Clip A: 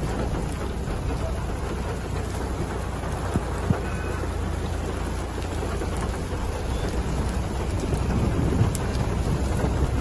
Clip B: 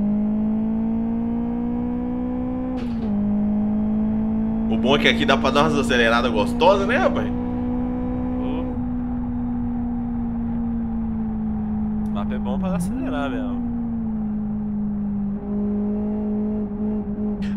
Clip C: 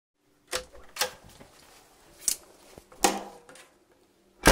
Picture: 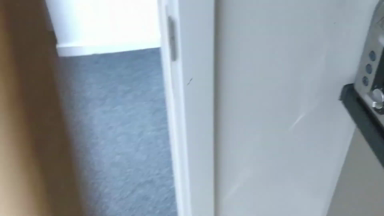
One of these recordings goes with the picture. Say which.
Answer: C